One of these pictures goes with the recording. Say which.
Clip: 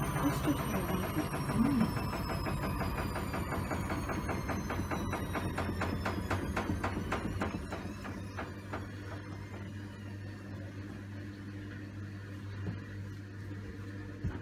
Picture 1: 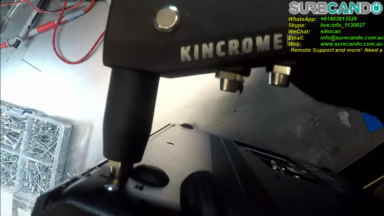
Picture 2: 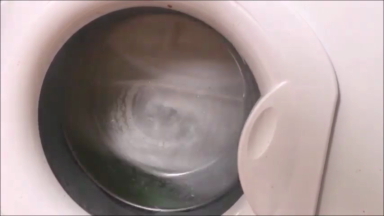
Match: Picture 2